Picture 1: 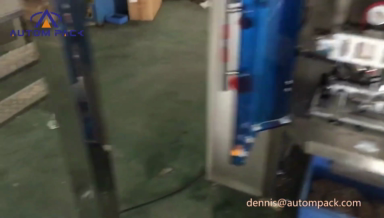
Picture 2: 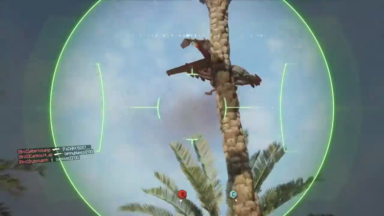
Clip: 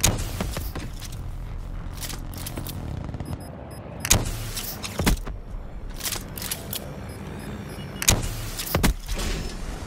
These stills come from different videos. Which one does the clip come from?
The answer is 2